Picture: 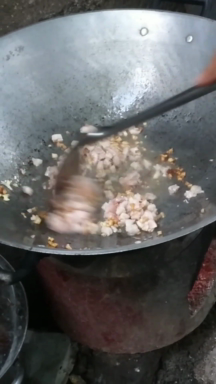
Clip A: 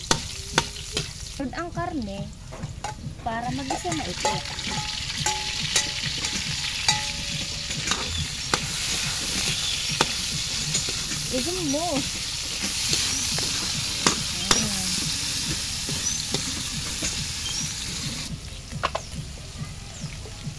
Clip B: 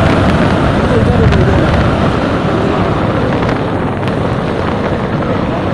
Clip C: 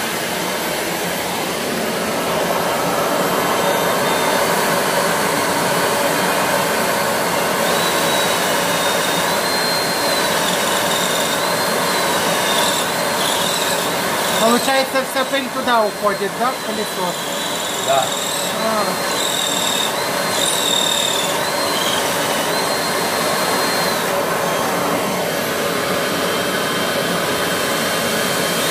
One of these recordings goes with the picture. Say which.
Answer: A